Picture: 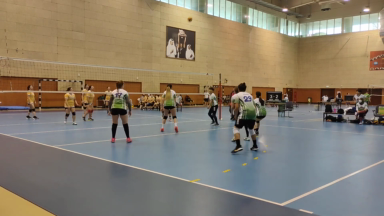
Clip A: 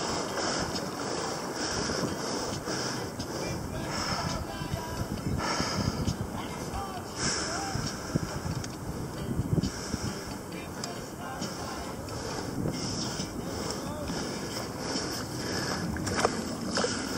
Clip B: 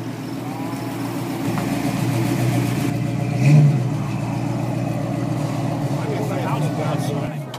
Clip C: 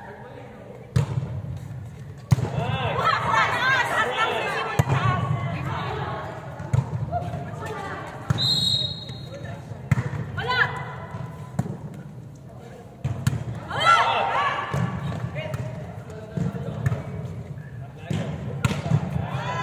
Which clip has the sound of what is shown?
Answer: C